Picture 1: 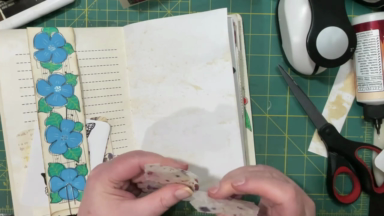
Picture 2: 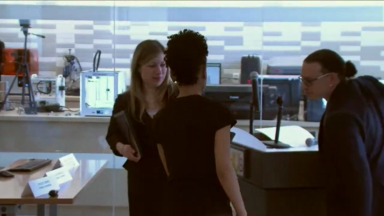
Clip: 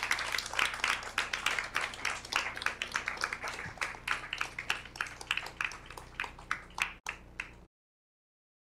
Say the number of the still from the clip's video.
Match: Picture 2